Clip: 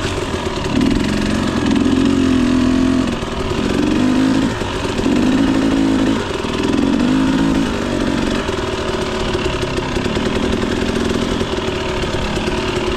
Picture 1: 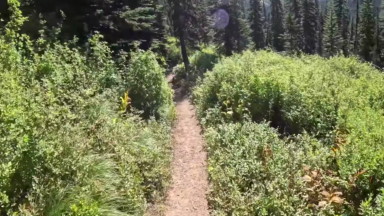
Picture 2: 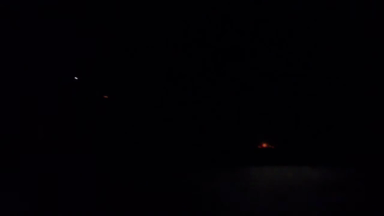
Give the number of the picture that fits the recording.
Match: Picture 1